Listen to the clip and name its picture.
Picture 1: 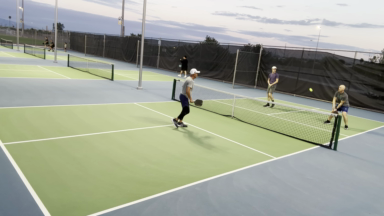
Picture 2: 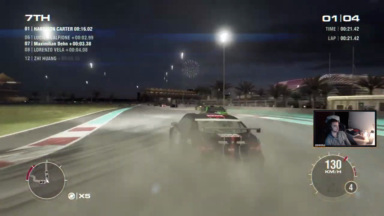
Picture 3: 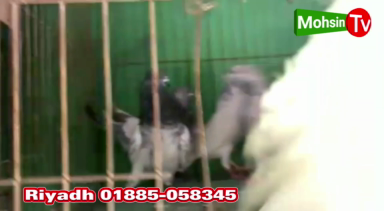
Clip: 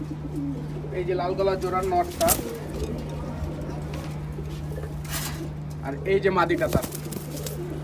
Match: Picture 3